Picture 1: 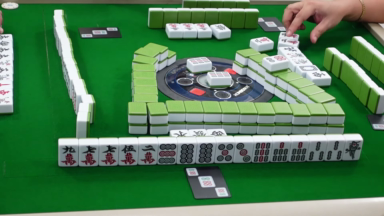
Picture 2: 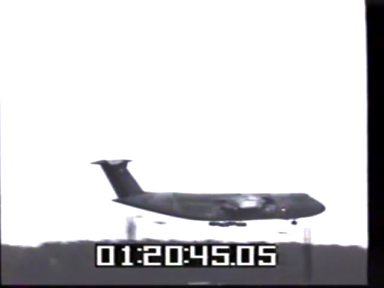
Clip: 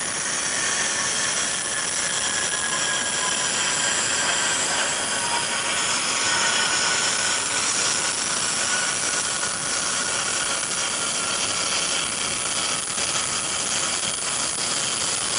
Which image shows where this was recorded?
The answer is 2